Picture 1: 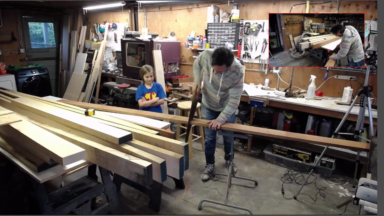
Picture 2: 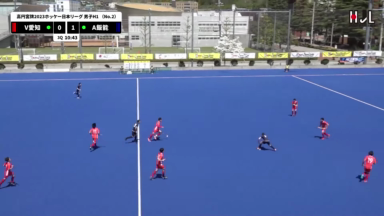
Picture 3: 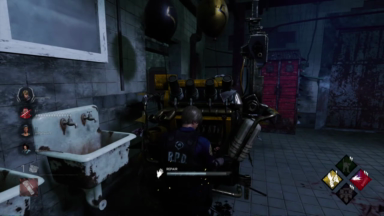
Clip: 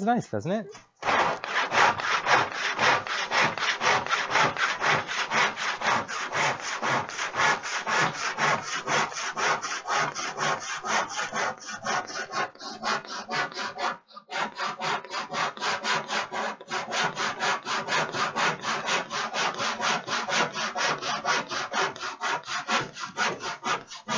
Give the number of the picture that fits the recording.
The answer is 1